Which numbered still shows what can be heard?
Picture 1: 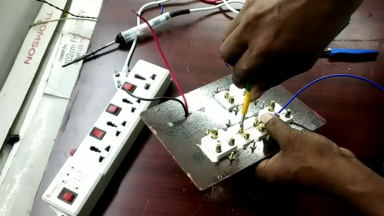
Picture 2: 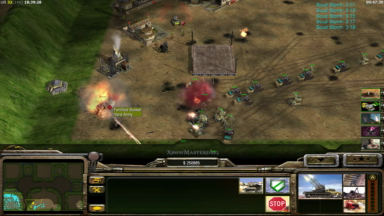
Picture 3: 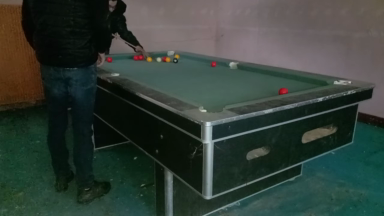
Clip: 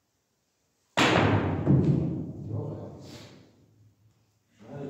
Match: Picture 3